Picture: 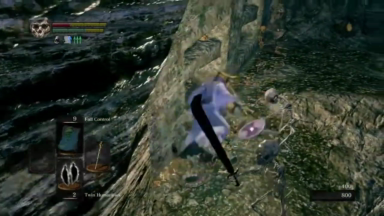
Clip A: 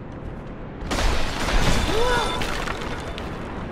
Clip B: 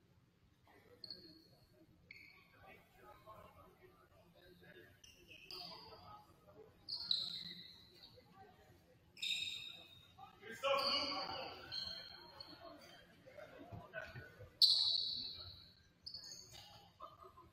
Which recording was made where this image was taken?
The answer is A